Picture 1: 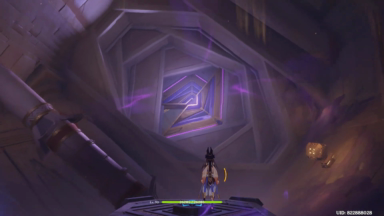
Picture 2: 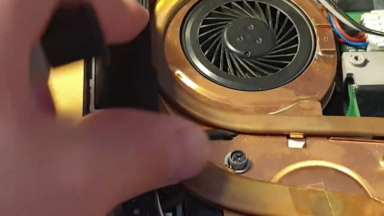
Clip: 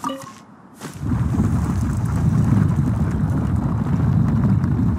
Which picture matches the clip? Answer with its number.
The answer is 1